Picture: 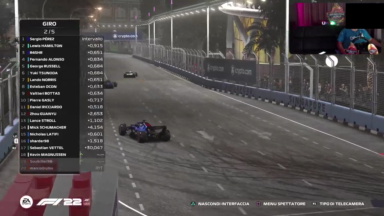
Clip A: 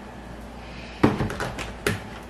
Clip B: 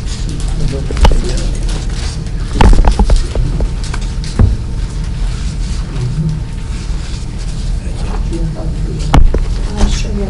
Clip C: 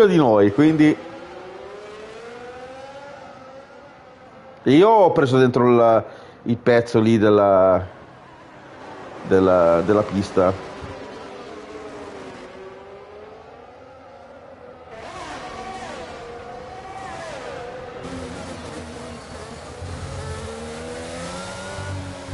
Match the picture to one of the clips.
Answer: C